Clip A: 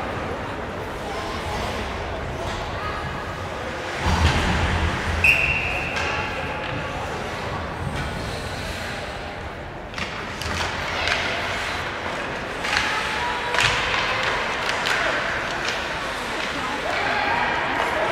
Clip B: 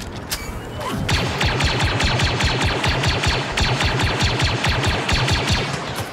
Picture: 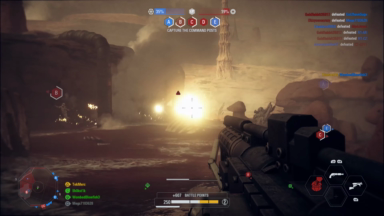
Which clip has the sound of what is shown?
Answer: B